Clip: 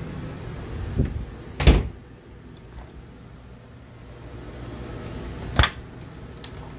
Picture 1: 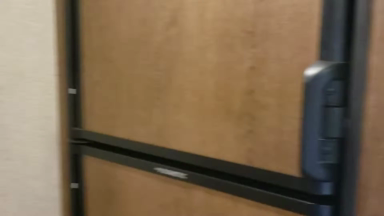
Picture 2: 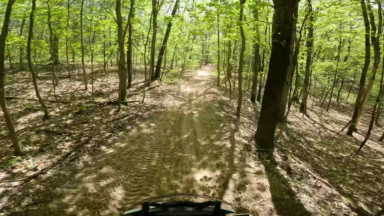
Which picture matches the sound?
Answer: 1